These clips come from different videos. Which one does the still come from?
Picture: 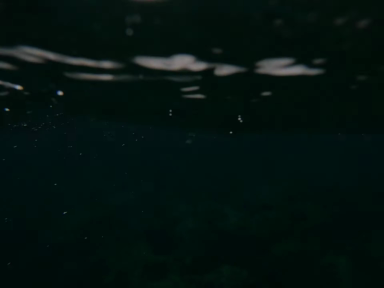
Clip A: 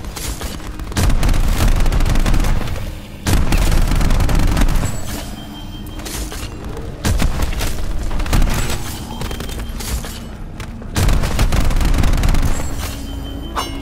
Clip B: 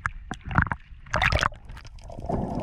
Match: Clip B